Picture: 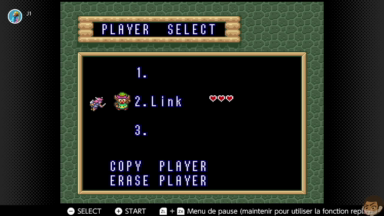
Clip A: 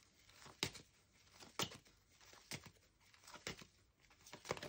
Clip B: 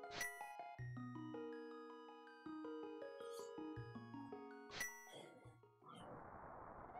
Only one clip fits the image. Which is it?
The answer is B